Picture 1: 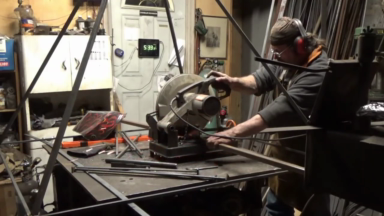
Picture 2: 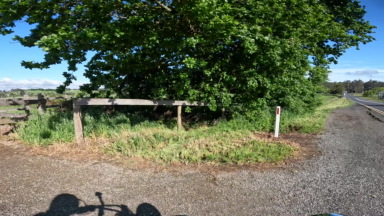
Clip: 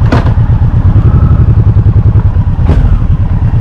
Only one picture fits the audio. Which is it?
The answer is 2